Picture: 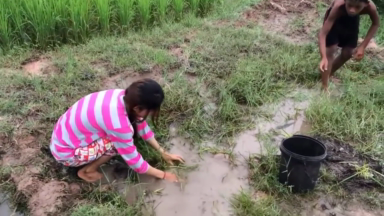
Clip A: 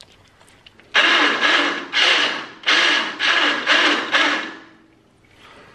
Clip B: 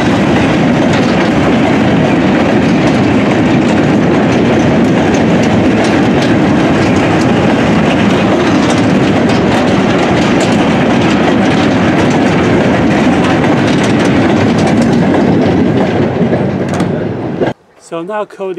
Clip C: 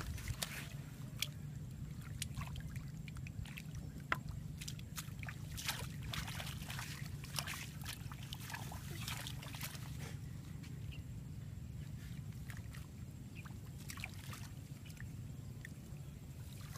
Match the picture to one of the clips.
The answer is C